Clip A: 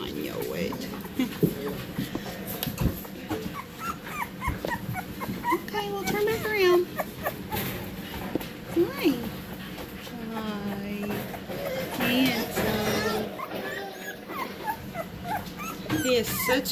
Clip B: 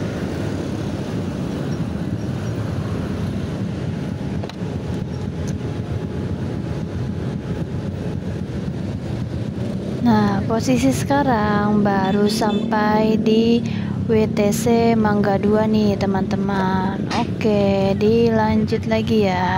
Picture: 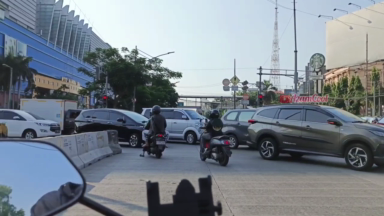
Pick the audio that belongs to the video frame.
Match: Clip B